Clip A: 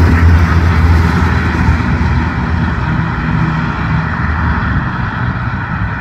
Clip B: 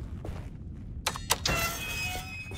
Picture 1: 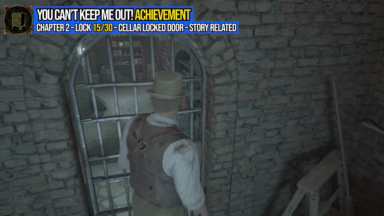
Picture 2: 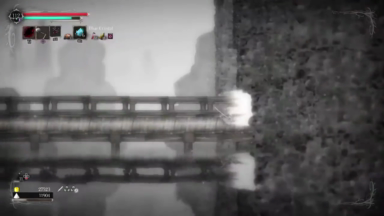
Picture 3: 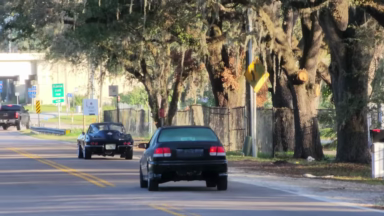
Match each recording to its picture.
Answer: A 3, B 1